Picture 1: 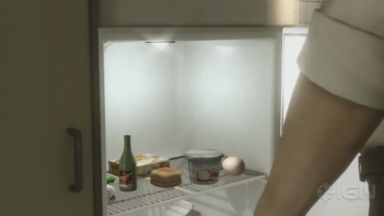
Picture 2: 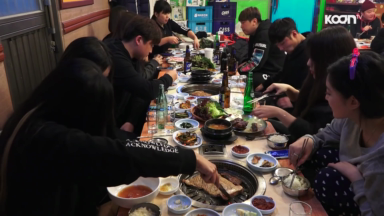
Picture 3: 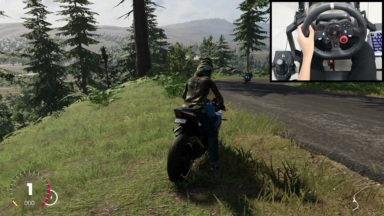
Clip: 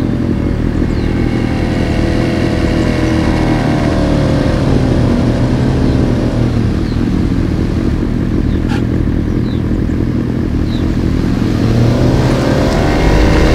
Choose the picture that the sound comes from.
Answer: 3